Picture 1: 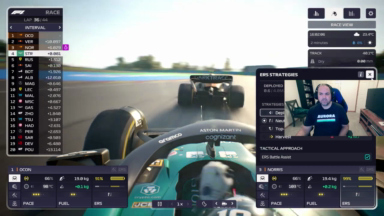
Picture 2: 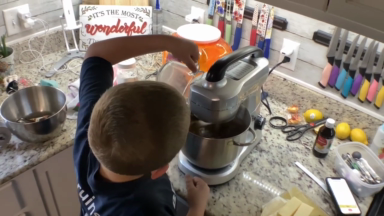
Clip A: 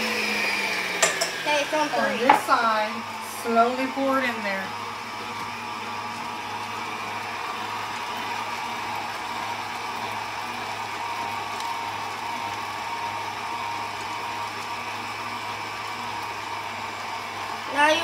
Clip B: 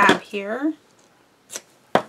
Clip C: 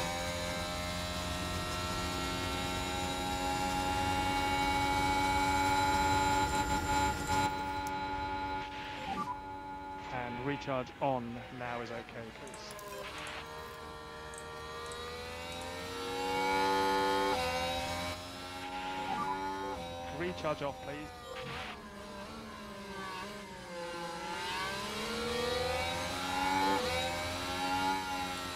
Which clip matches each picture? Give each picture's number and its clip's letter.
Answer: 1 C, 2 A